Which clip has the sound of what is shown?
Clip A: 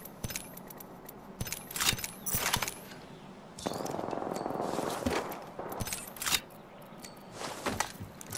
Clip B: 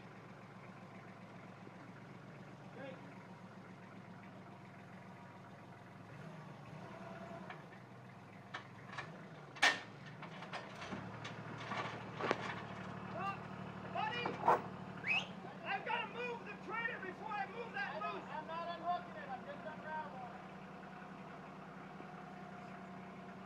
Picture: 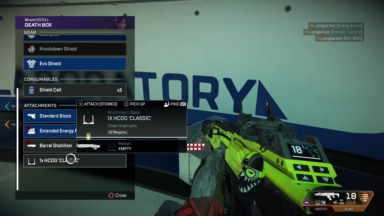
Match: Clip A